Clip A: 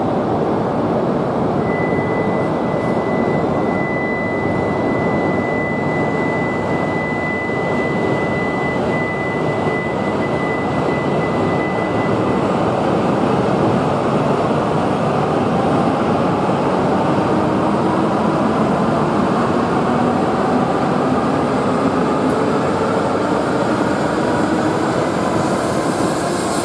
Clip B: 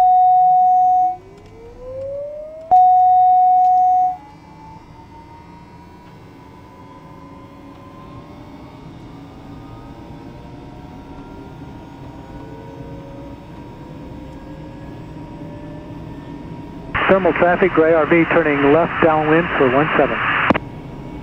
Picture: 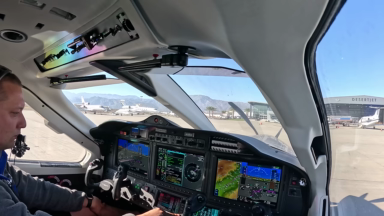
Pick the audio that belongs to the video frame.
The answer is B